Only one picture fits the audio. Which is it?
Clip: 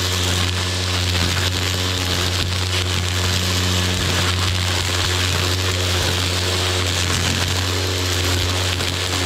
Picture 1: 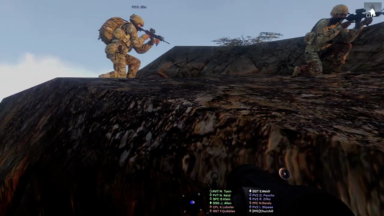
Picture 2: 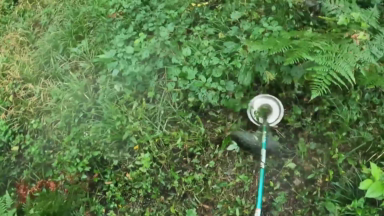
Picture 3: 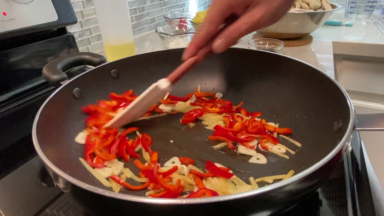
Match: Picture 2